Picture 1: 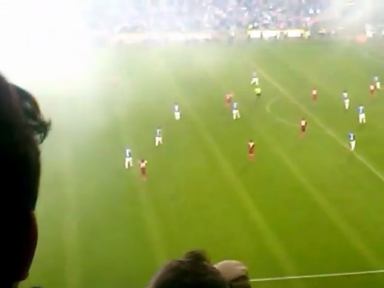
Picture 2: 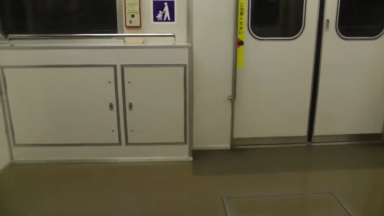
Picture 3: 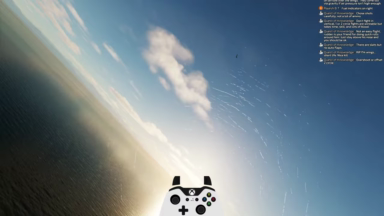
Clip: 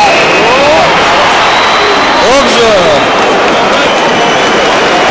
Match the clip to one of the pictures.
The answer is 1